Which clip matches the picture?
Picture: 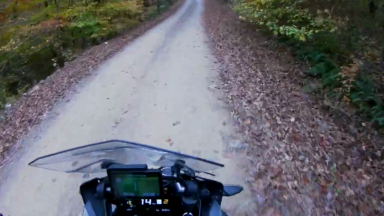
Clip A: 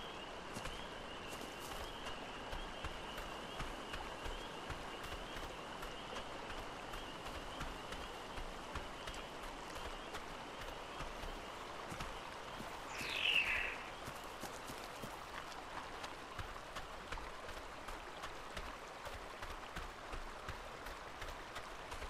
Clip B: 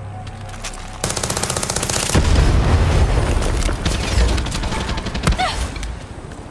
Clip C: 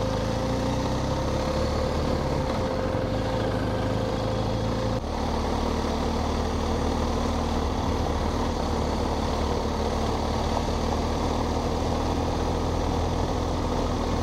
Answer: C